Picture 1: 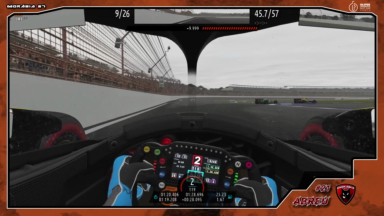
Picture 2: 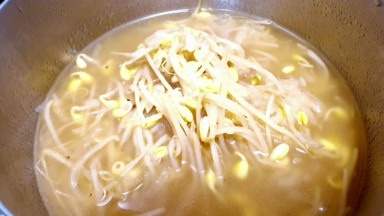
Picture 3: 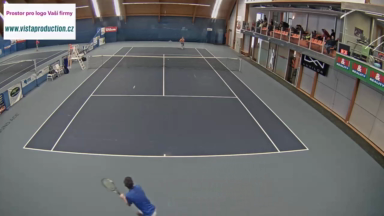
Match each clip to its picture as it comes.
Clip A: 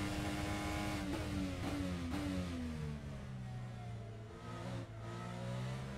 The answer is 1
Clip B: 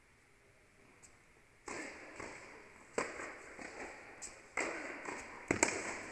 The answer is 3